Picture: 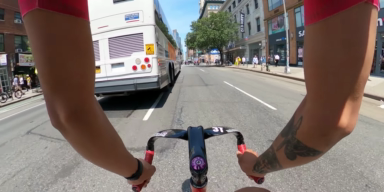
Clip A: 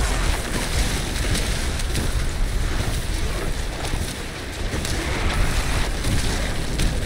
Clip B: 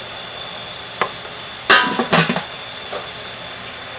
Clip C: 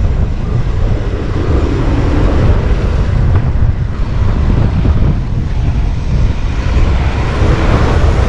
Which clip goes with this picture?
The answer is C